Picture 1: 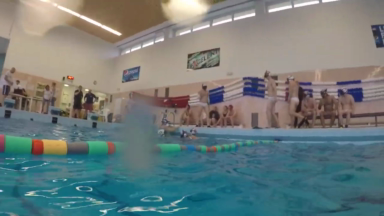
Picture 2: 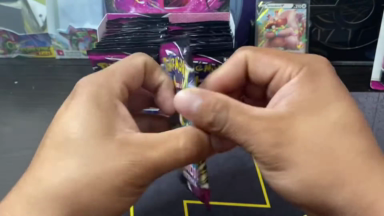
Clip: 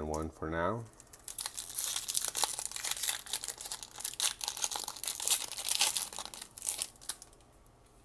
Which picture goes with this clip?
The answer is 2